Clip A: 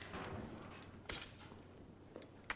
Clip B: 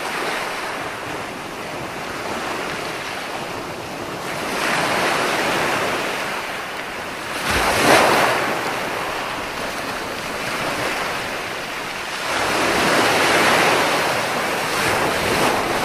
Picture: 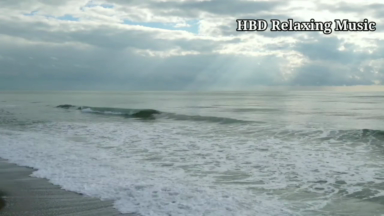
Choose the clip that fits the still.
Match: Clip B